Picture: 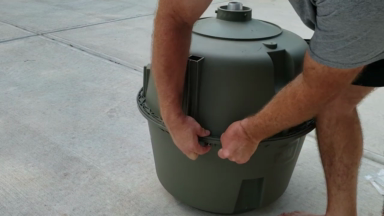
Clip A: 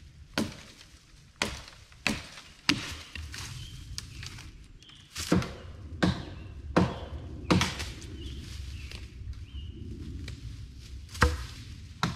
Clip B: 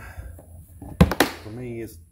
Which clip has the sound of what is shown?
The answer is B